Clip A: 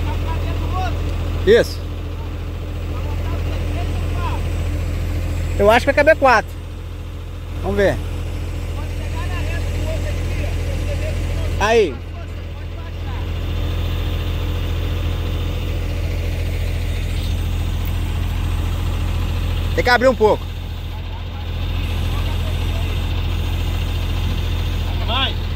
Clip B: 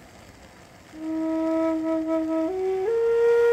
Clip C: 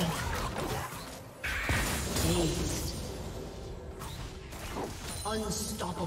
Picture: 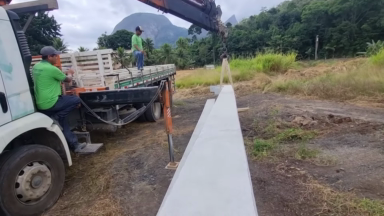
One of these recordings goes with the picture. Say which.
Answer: A